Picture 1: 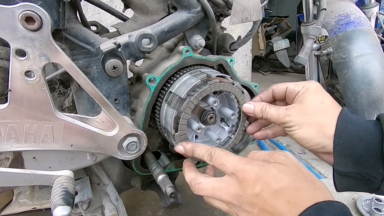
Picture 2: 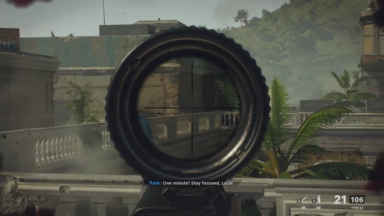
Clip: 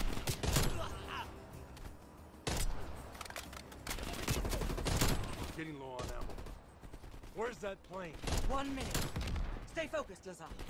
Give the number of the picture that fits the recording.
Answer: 2